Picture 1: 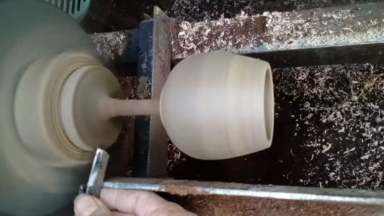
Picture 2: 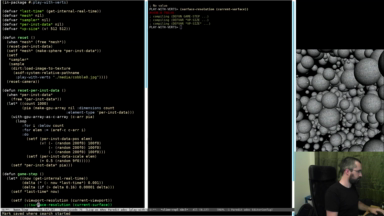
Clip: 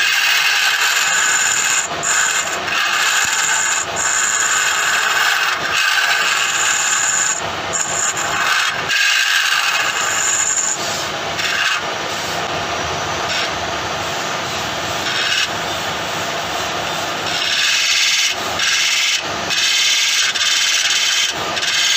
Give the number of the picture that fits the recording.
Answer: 1